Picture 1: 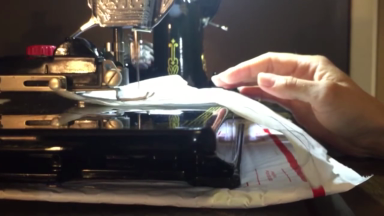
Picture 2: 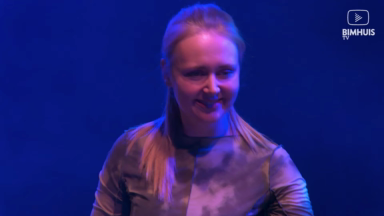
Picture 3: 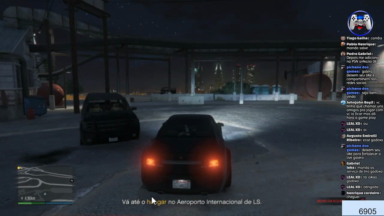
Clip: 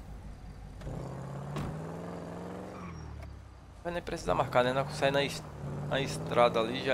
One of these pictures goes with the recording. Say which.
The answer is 3